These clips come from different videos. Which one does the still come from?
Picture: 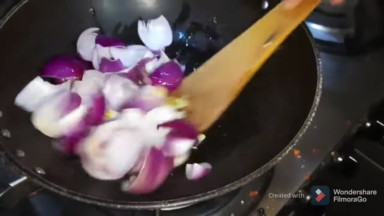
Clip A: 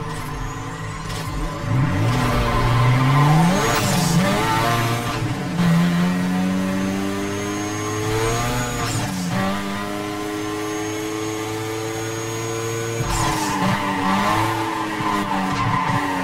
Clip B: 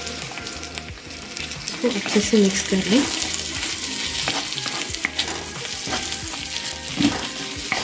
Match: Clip B